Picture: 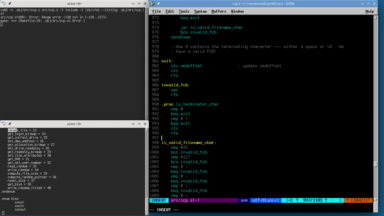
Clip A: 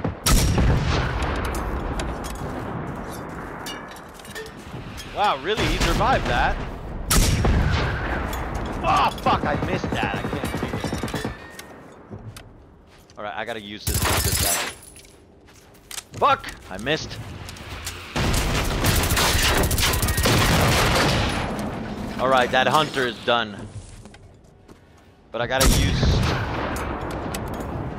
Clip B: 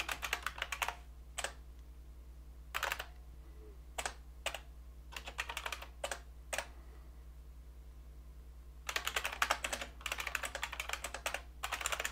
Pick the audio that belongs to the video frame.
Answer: B